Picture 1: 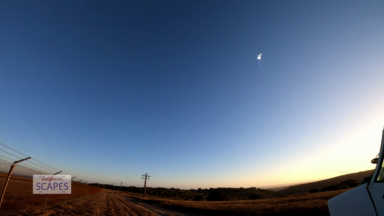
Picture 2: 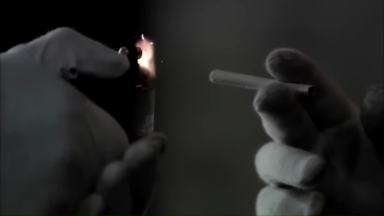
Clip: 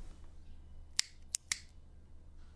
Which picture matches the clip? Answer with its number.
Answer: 2